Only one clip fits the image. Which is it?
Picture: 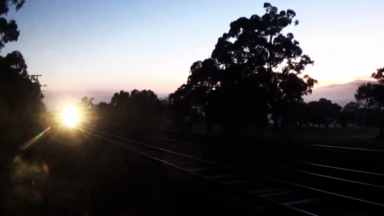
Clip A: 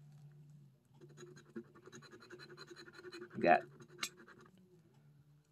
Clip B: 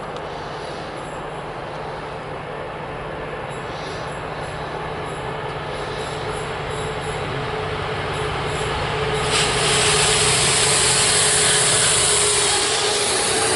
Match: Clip B